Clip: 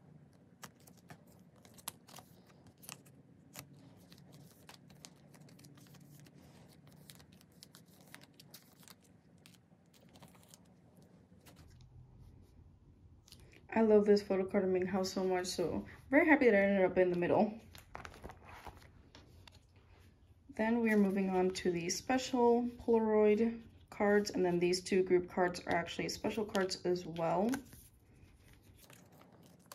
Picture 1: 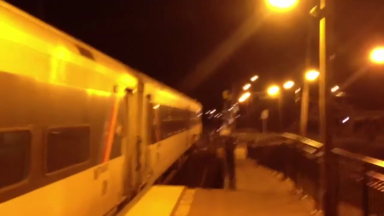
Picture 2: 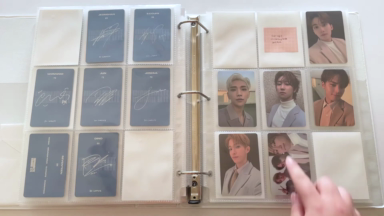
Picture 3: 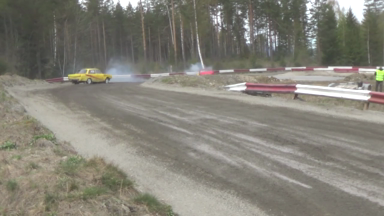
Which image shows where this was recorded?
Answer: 2